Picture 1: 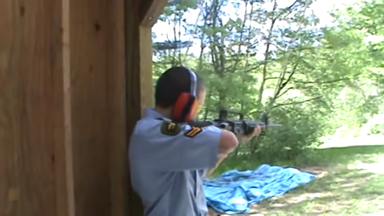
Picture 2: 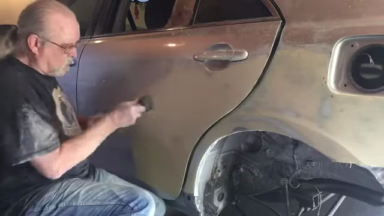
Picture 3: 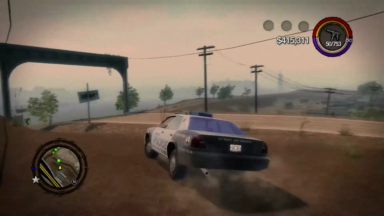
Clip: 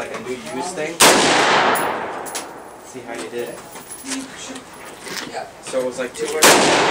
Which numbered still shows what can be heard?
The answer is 1